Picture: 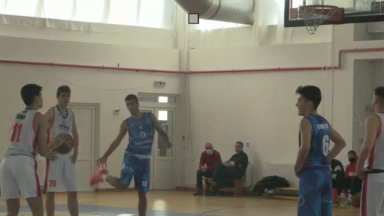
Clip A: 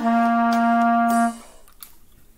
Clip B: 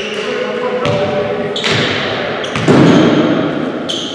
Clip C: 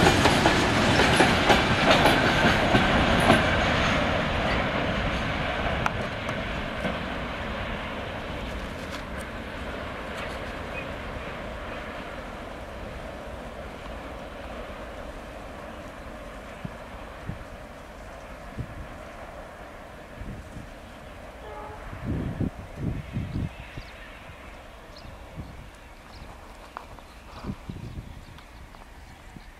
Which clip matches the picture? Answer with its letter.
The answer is B